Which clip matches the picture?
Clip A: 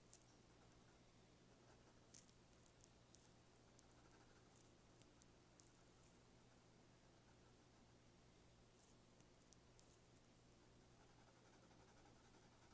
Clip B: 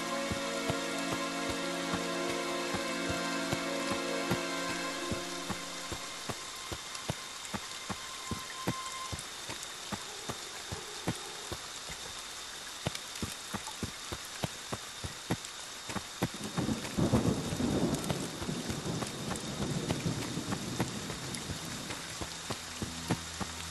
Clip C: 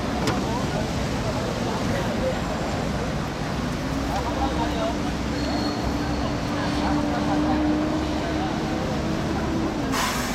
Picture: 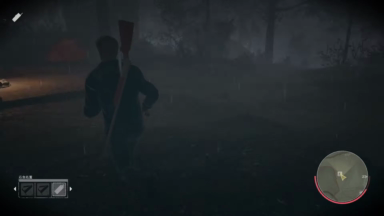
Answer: B